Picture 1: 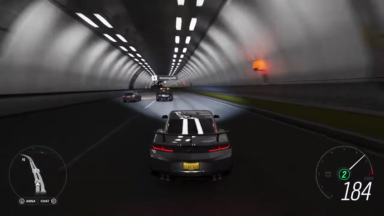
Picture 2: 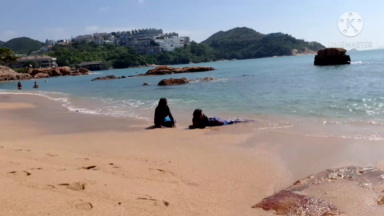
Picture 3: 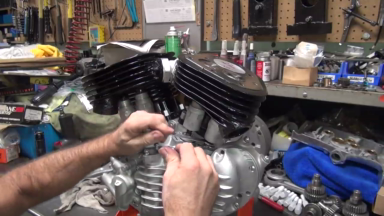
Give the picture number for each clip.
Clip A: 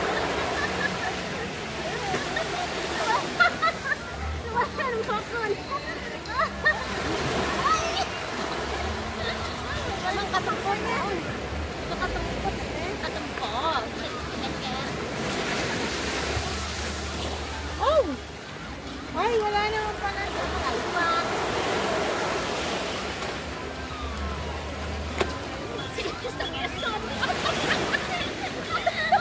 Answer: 2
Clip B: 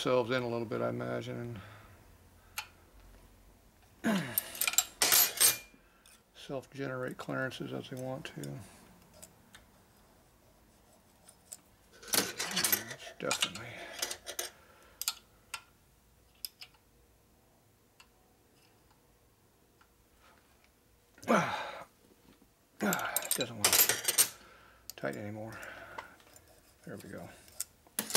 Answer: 3